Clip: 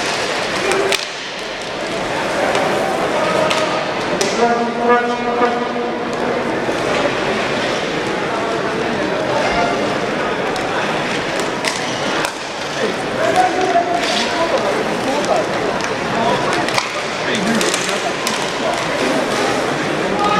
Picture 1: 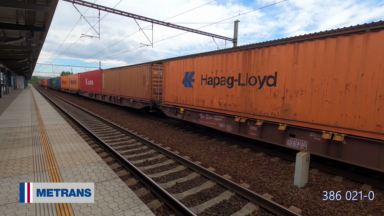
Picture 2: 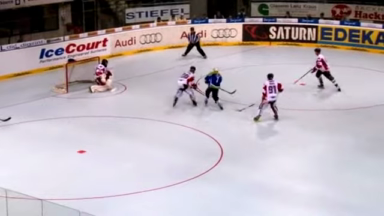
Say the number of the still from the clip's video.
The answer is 2